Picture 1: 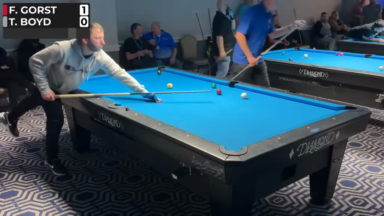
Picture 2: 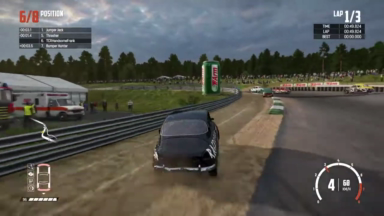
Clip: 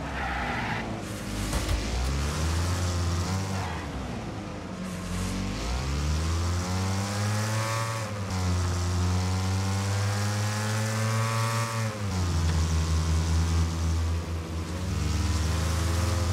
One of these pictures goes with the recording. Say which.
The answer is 2